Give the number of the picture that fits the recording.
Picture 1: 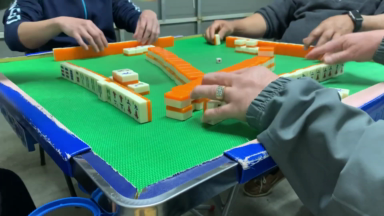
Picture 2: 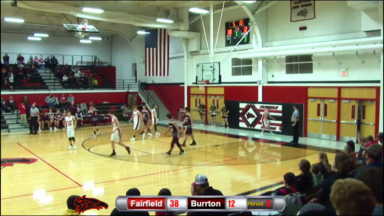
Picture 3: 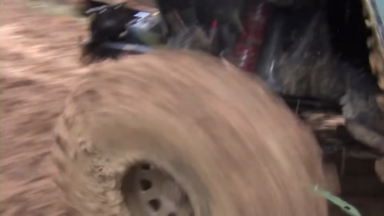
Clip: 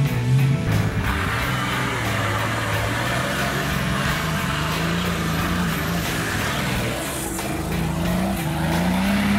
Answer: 3